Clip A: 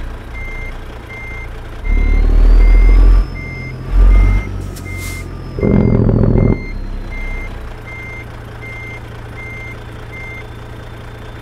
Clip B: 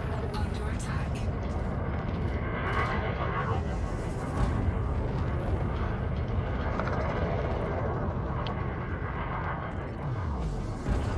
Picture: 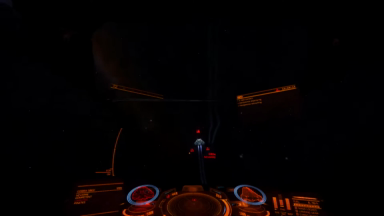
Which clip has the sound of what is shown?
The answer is B